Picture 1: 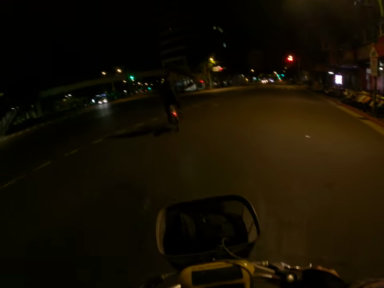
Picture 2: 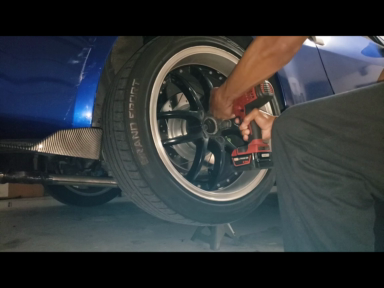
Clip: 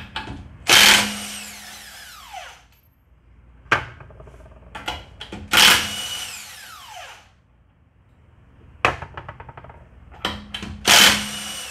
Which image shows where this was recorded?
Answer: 2